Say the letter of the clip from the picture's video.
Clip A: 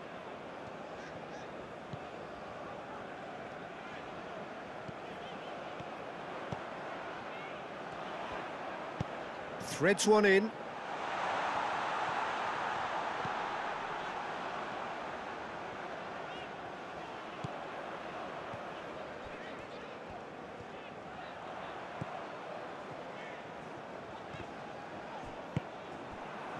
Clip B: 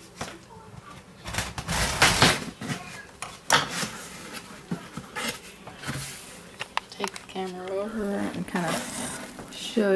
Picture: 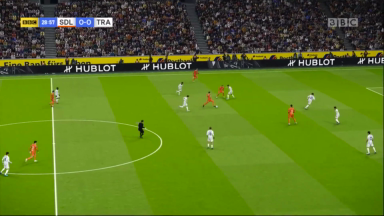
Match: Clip A